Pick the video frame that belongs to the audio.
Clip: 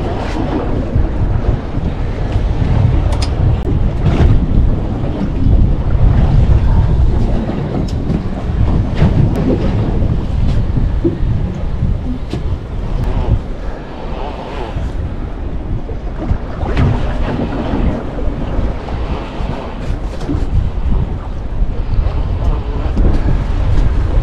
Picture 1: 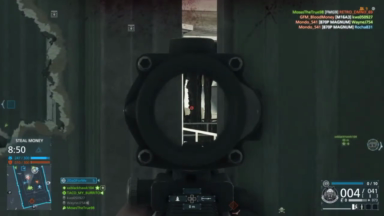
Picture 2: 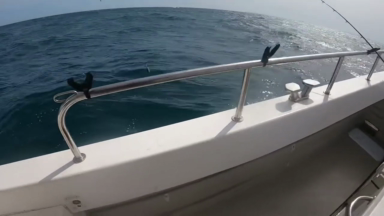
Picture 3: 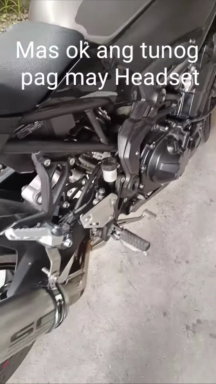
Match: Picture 2